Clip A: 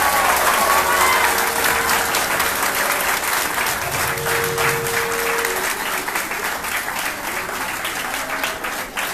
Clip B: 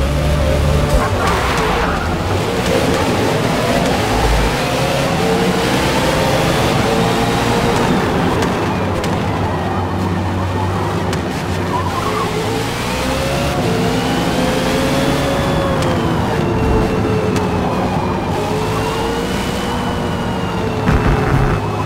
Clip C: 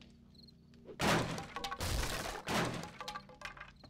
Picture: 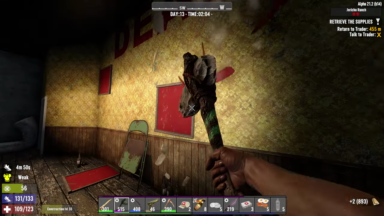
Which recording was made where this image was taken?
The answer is C